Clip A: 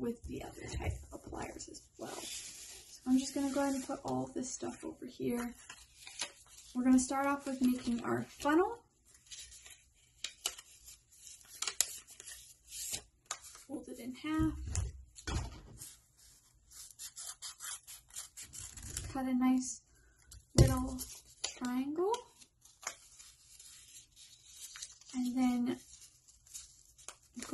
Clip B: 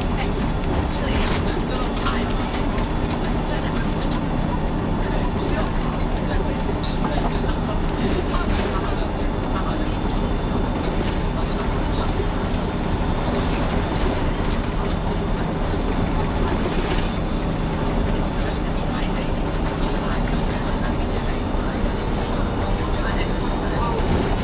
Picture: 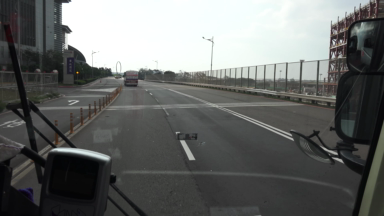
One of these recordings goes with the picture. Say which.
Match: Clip B